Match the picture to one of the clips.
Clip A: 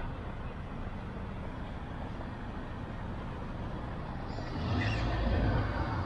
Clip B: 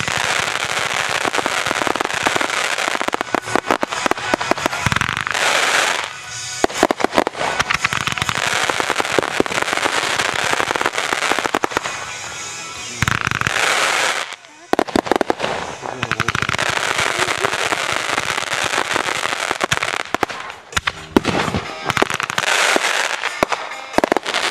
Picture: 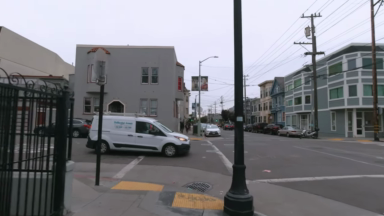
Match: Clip A